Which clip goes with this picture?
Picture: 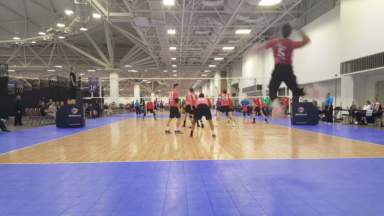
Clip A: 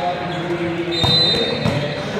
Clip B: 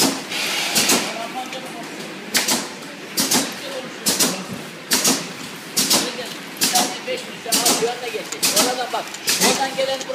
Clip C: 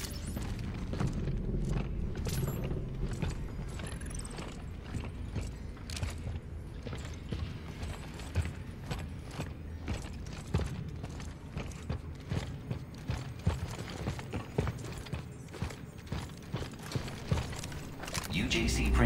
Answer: A